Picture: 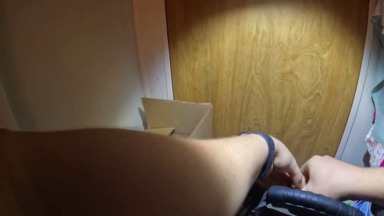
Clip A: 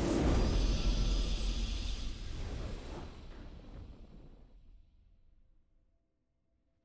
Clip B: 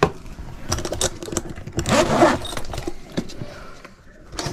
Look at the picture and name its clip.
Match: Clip B